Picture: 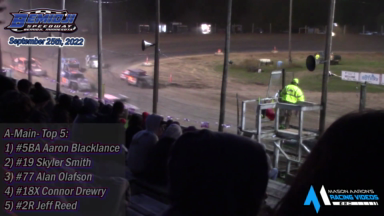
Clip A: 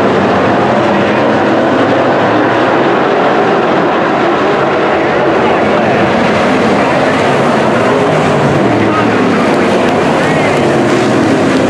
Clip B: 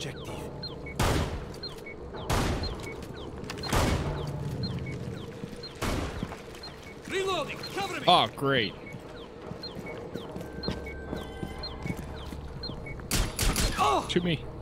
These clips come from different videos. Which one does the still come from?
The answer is A